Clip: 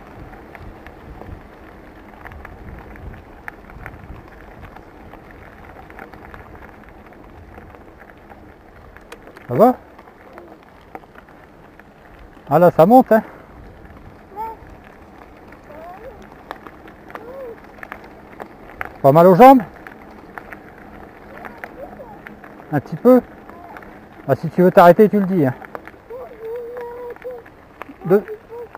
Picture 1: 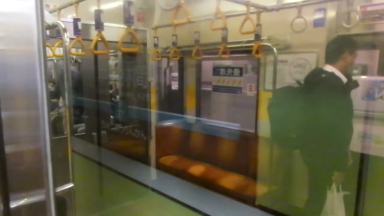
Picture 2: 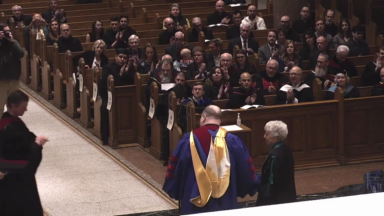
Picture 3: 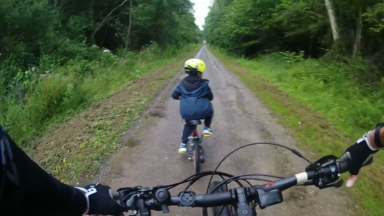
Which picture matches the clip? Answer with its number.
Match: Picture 3